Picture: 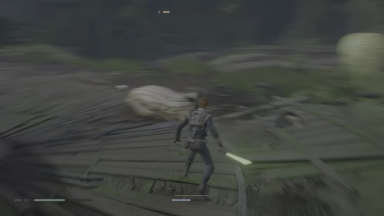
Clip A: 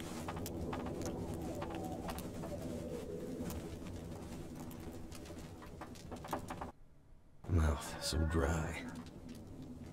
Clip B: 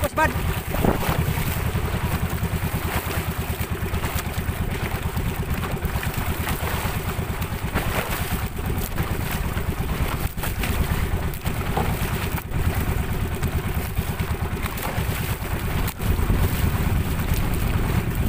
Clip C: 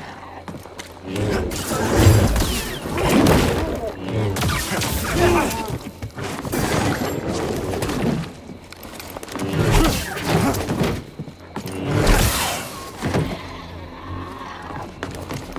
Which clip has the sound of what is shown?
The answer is C